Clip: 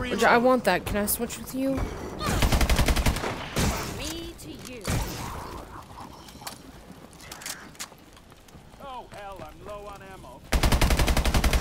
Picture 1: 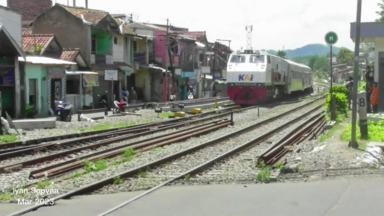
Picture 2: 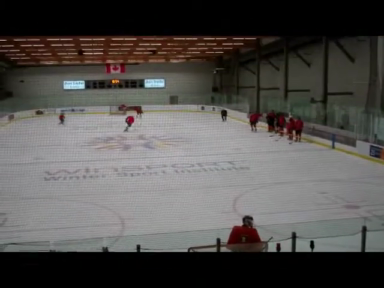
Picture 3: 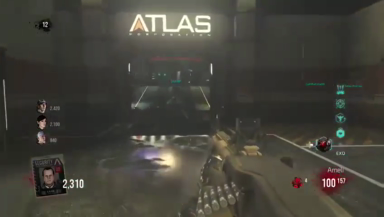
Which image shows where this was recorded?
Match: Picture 3